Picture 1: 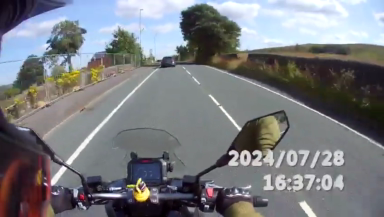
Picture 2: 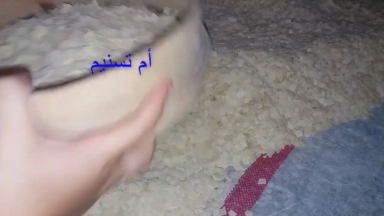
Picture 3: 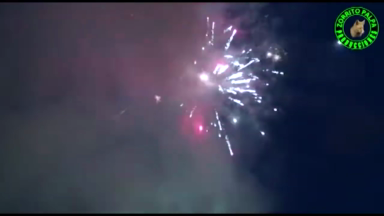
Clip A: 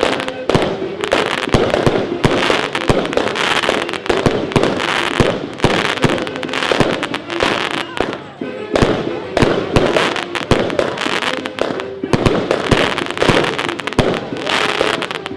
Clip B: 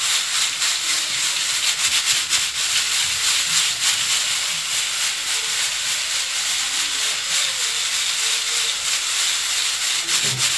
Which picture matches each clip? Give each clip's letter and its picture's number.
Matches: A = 3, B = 2